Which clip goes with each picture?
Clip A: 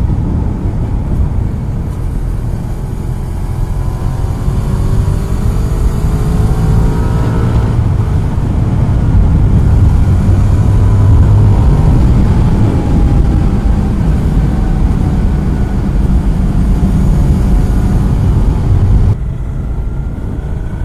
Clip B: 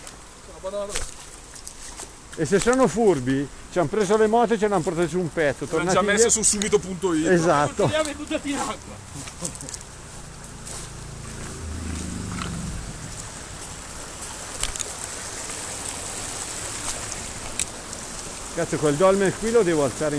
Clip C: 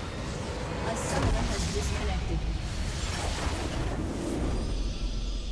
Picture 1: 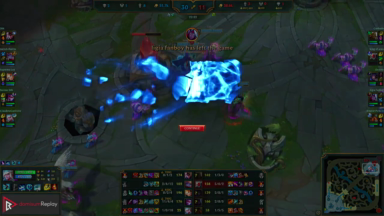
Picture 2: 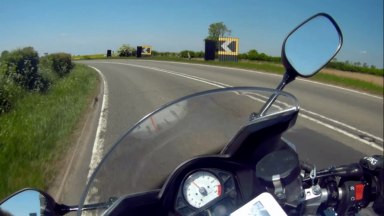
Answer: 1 C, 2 A